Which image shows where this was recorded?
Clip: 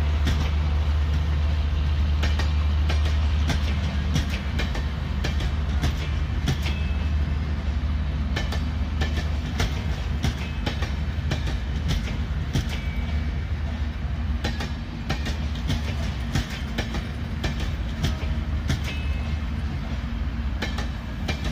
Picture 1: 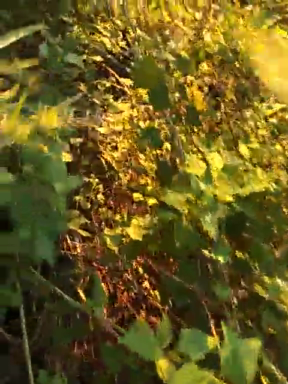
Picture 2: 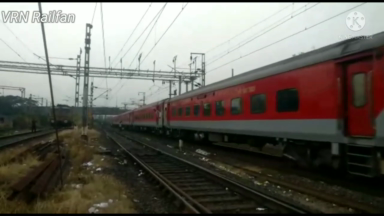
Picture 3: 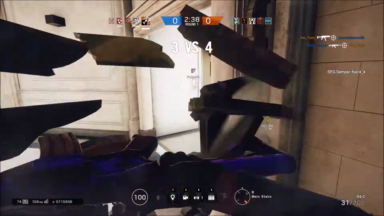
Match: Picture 2